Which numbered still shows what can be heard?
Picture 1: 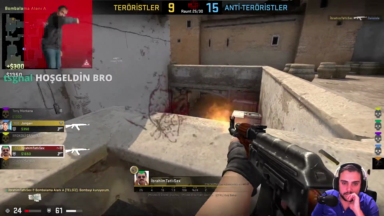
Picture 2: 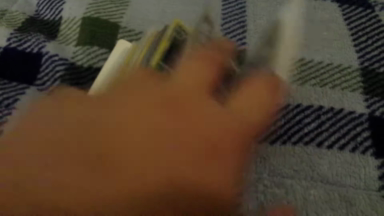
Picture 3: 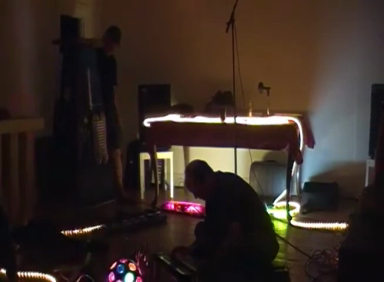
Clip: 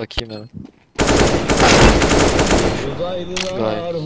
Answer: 1